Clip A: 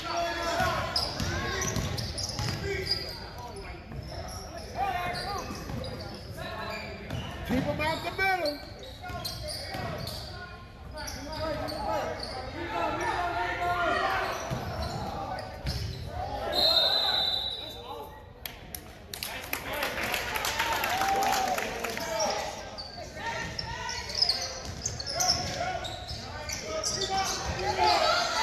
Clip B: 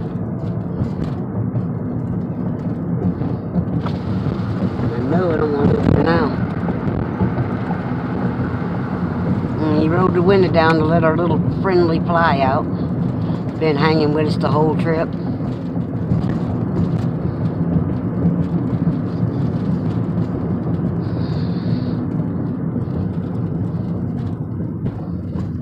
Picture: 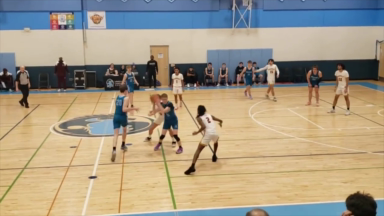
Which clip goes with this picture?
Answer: A